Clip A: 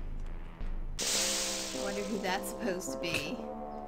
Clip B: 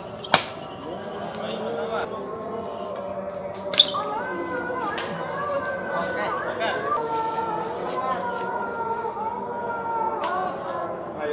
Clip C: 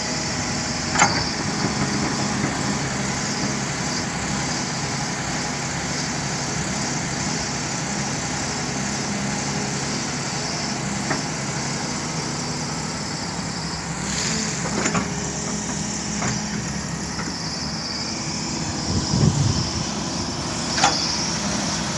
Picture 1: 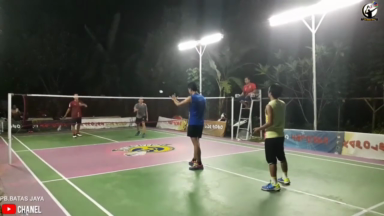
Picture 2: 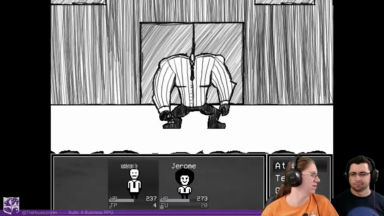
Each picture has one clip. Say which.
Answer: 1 B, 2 A